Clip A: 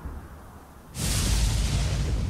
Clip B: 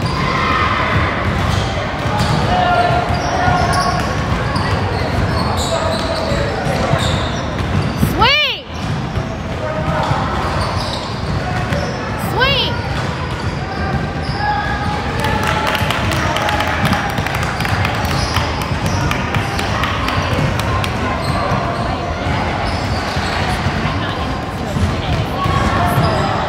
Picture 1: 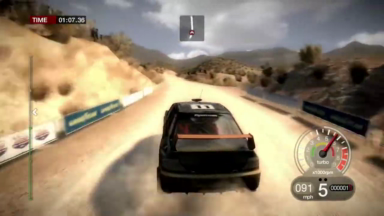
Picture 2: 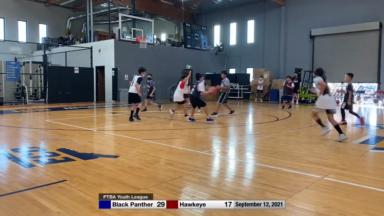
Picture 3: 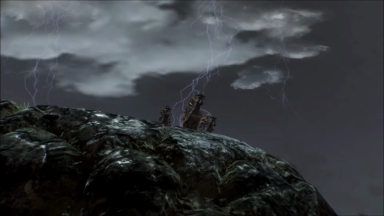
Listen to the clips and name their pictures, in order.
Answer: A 3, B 2